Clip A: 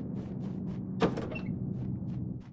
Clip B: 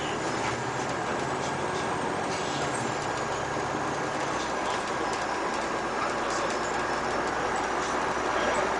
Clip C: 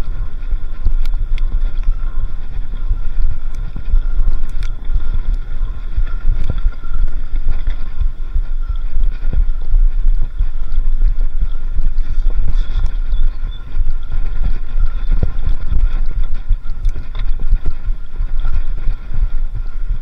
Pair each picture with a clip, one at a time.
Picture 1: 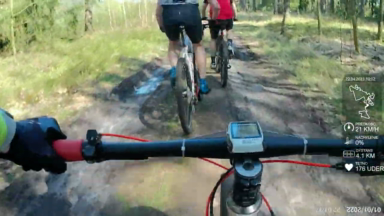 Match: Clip C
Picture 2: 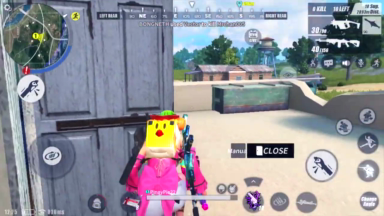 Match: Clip A